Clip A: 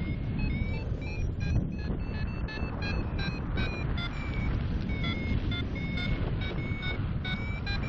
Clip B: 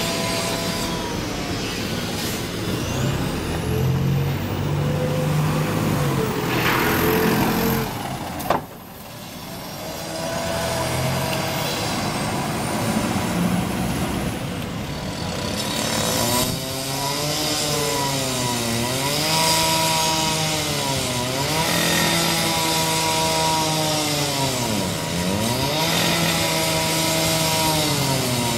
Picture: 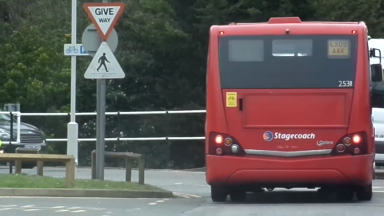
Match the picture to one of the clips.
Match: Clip B